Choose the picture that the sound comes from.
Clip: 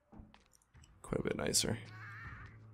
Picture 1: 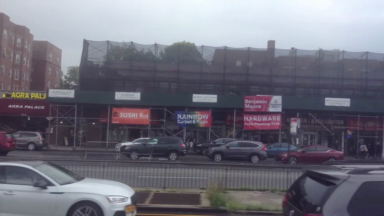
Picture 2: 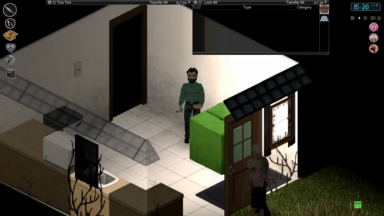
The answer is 2